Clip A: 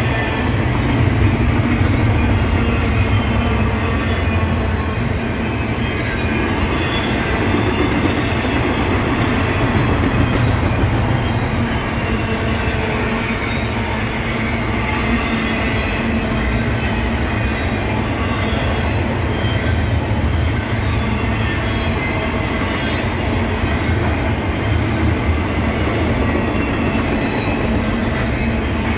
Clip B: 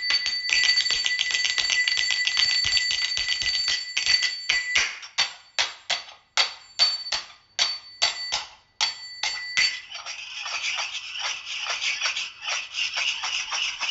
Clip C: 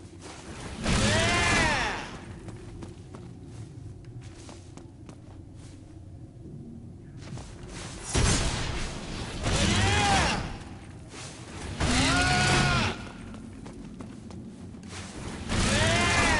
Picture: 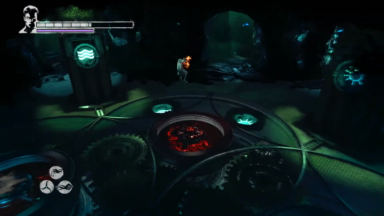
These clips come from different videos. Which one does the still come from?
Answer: C